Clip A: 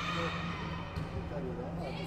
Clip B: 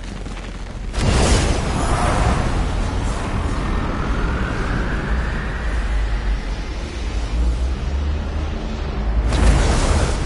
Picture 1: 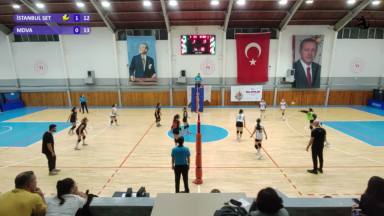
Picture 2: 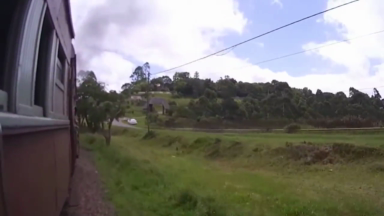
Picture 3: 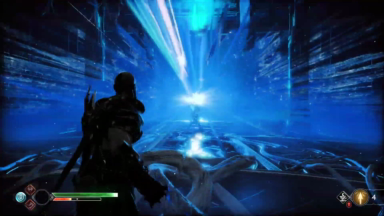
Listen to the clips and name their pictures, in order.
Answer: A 1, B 3